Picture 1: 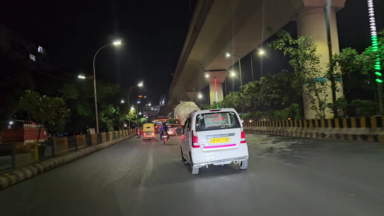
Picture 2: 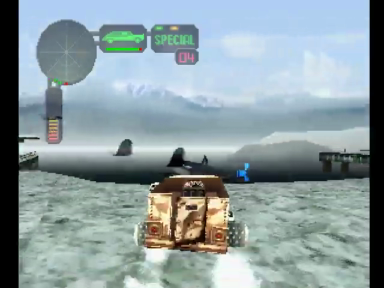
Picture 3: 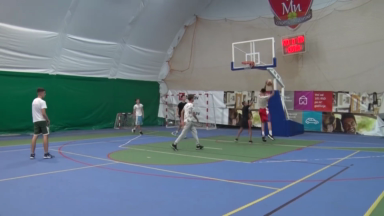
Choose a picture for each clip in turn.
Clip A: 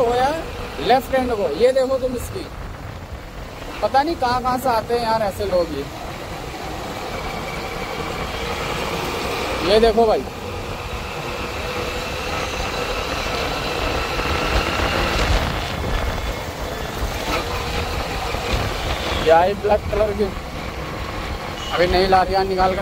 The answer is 1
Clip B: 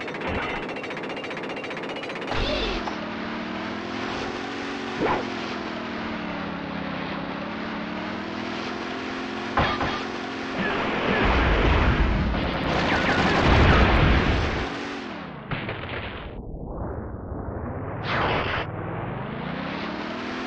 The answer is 2